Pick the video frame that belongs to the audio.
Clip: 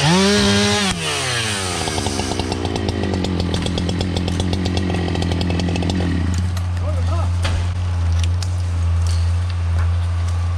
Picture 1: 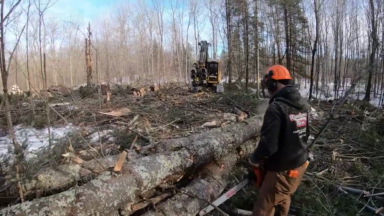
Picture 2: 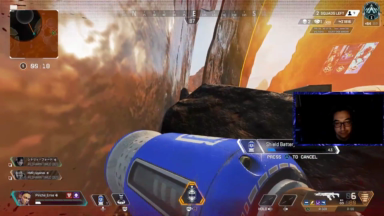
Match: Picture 1